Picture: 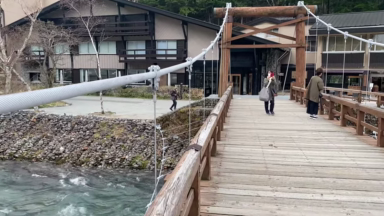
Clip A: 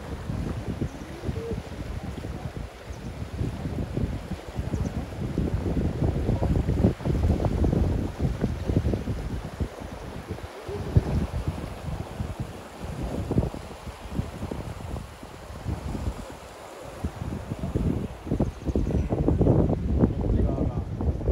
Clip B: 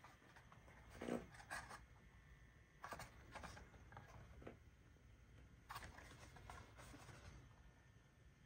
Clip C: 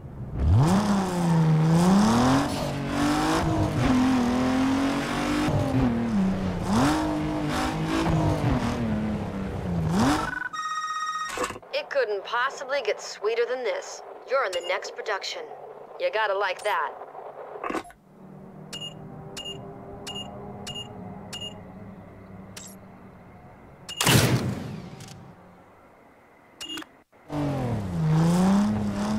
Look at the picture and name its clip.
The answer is A